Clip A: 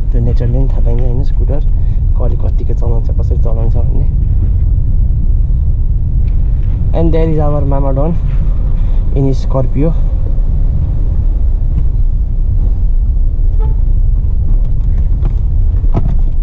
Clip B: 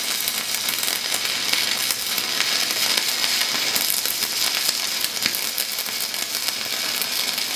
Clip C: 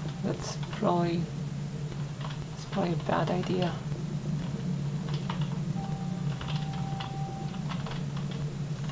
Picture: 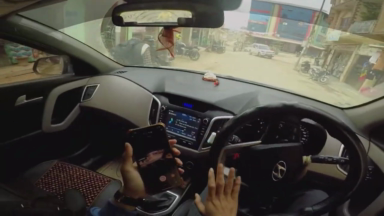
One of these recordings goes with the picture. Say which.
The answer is A